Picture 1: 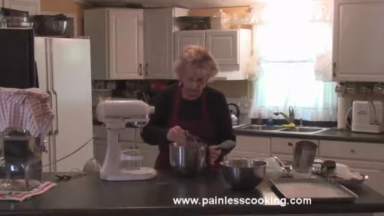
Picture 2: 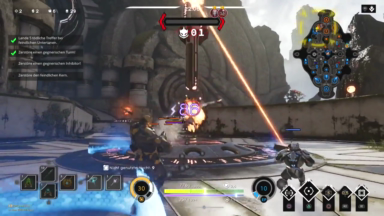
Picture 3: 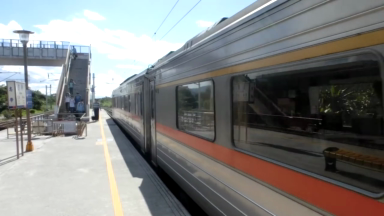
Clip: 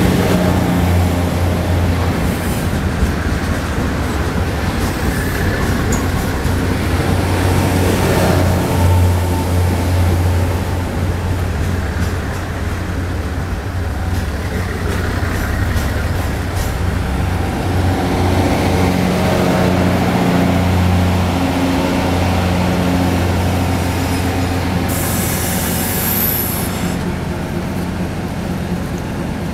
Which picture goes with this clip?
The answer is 3